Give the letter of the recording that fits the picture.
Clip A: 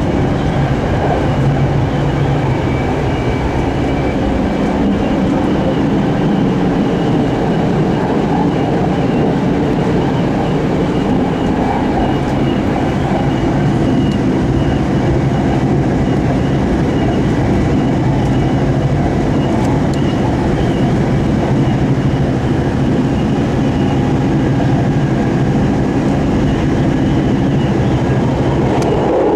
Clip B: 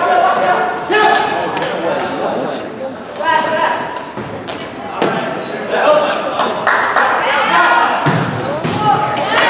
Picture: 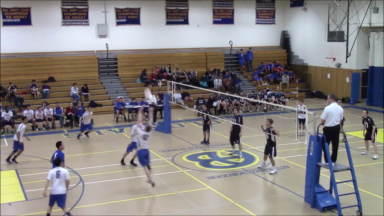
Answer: B